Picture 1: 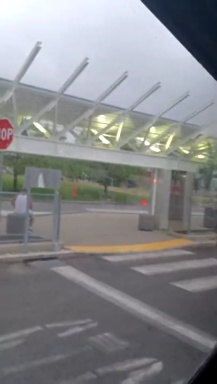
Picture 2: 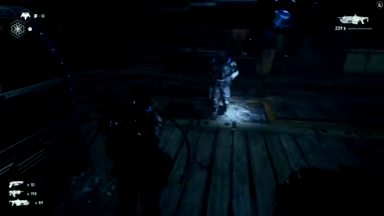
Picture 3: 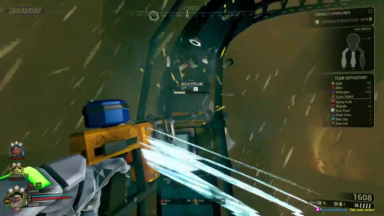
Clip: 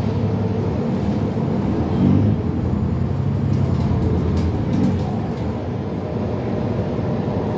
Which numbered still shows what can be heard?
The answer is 1